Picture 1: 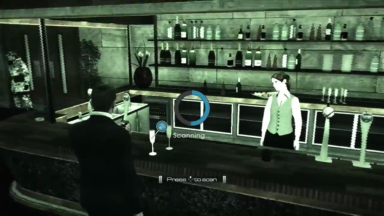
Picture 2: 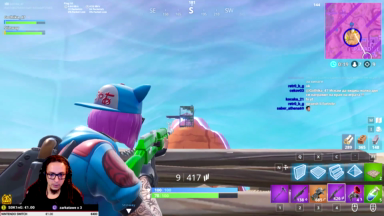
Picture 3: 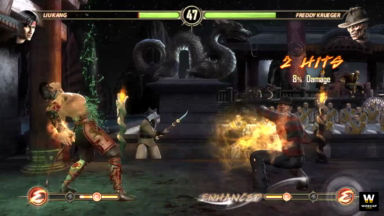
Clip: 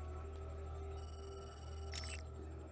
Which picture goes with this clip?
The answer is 1